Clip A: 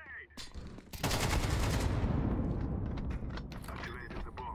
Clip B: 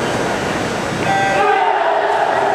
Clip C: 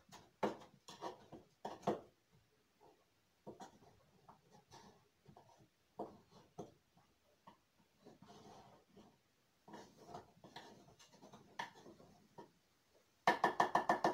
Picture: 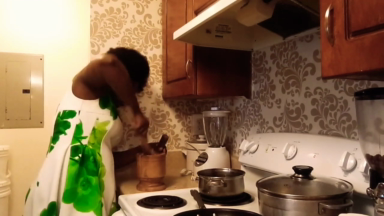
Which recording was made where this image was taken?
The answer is C